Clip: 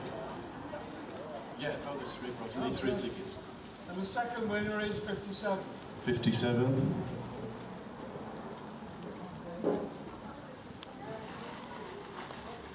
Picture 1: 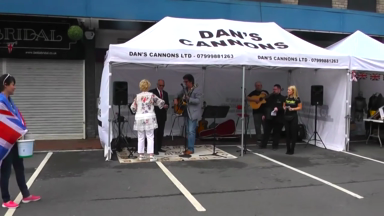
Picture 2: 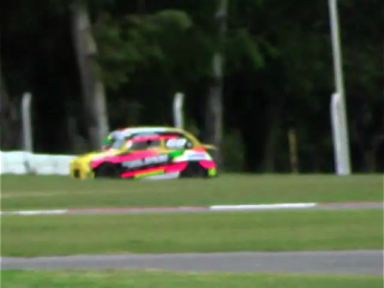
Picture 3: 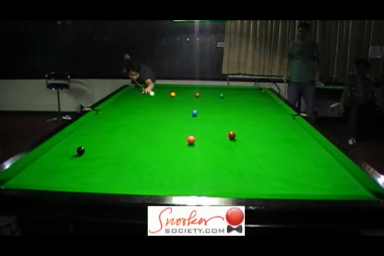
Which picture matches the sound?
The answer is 1